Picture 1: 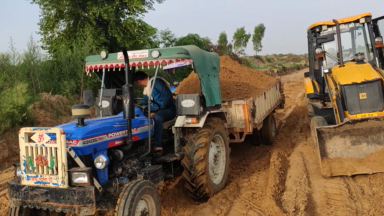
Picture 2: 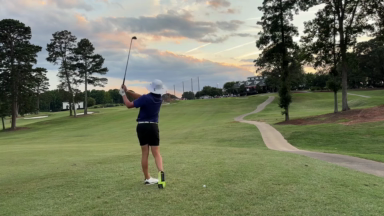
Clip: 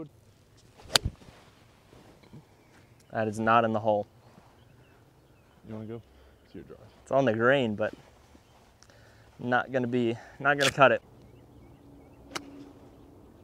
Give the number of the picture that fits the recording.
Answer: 2